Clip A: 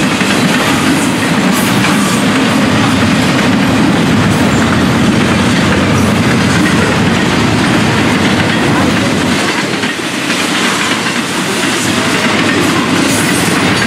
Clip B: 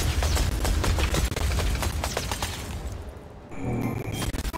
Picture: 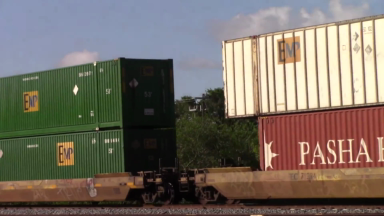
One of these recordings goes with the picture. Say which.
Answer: A